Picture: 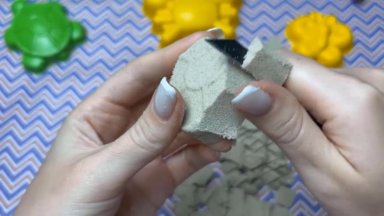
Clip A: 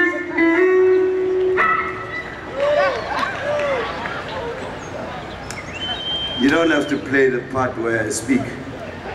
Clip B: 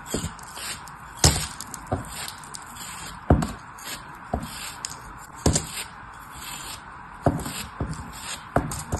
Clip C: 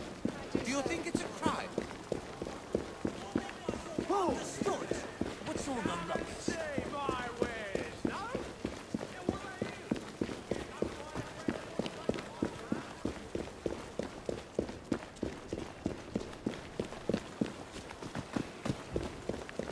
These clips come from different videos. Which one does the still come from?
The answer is B